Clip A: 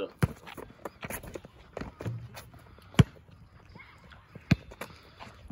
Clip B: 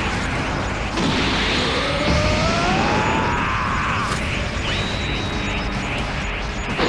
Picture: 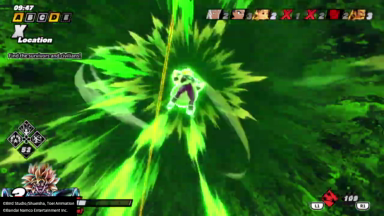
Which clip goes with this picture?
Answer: B